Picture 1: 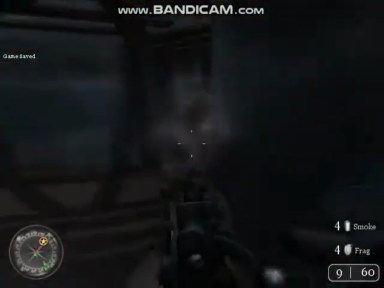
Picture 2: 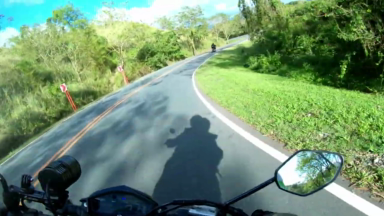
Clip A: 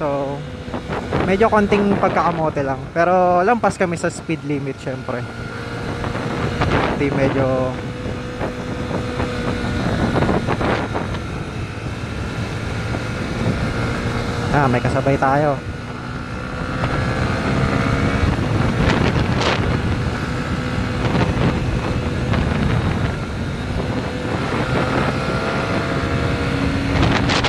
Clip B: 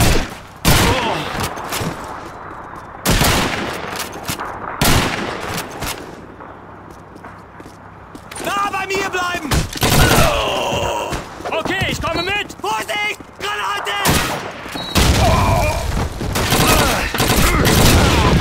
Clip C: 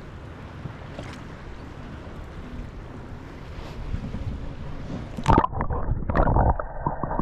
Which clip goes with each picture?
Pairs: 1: B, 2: A